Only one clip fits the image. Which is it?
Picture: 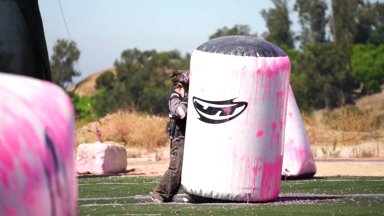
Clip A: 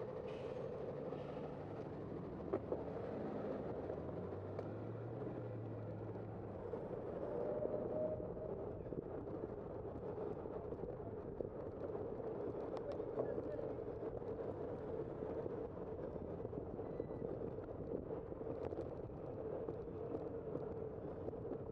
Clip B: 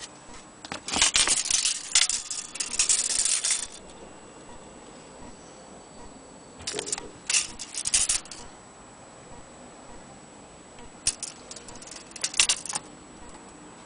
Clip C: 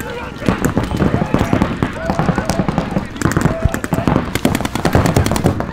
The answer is C